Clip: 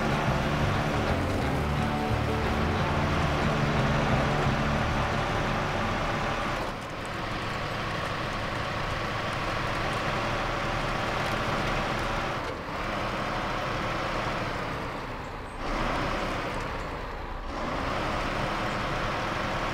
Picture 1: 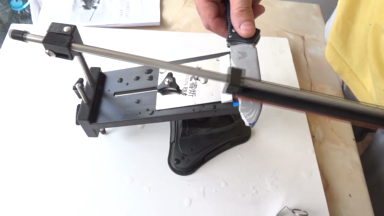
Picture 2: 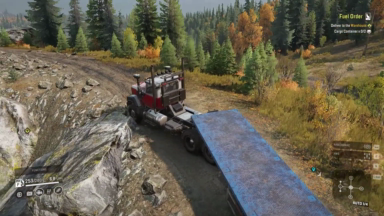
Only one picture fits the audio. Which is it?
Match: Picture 2